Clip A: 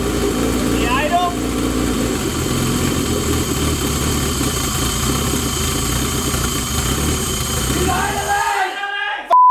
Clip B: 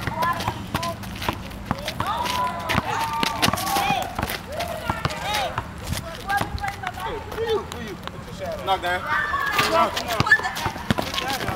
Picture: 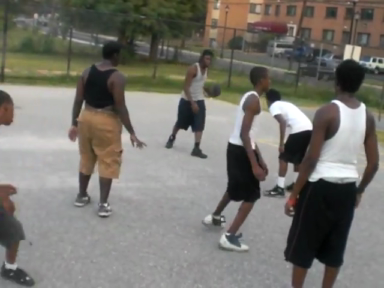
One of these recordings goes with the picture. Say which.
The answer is B